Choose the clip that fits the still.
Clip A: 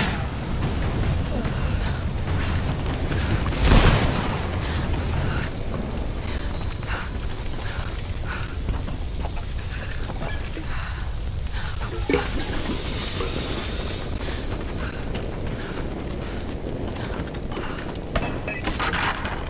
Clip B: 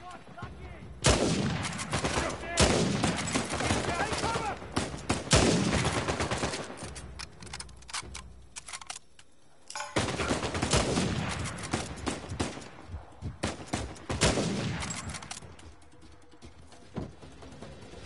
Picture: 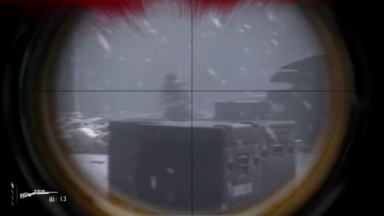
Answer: B